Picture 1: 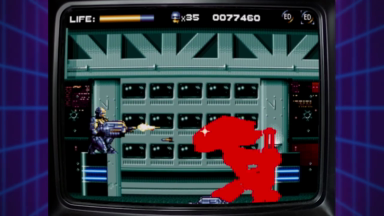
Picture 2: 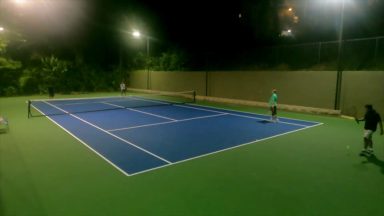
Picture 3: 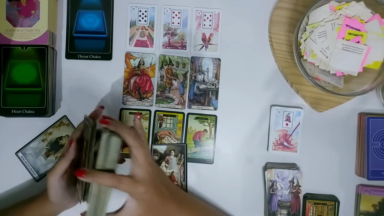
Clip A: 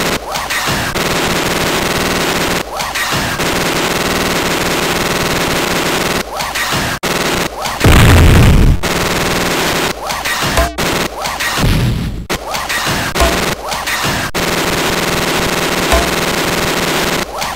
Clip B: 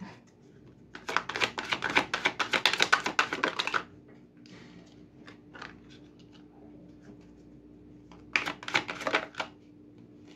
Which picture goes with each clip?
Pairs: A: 1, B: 3